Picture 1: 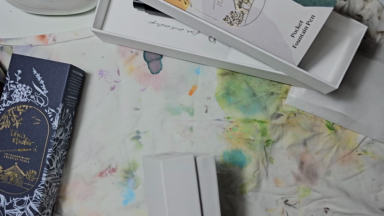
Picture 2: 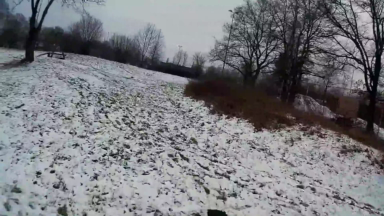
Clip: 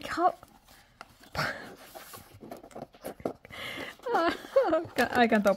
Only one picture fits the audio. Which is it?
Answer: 1